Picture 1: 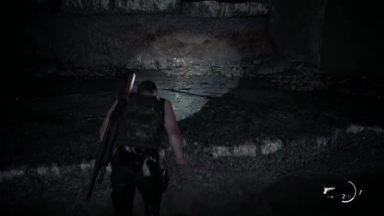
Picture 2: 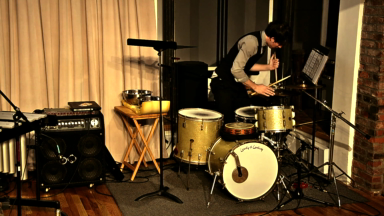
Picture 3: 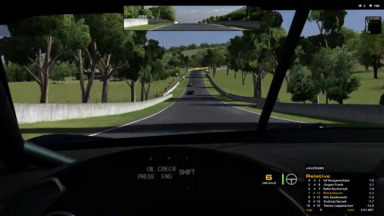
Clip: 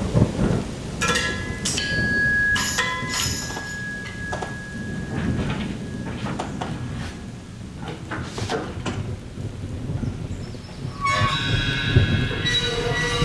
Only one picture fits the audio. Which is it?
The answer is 2